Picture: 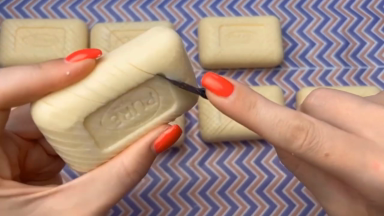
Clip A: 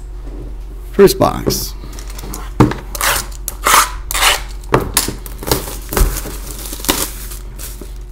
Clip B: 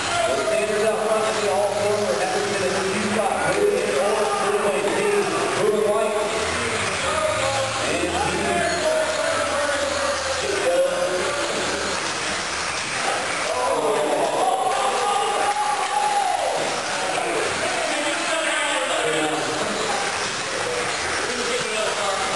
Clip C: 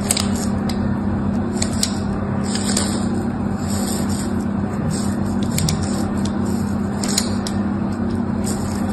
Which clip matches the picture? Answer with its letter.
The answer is C